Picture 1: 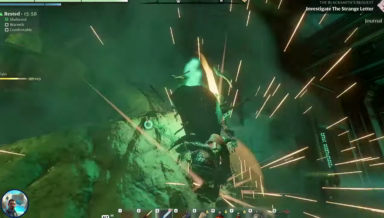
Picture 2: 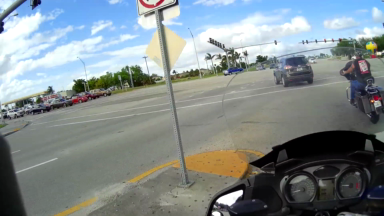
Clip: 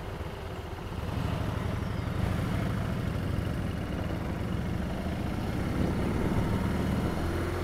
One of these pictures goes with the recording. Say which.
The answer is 2